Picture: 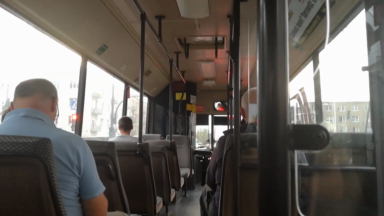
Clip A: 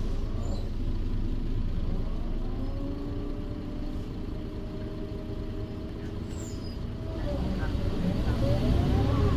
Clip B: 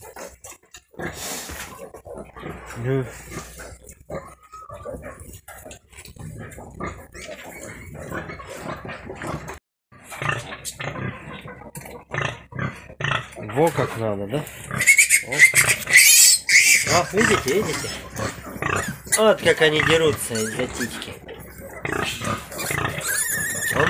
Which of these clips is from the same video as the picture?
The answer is A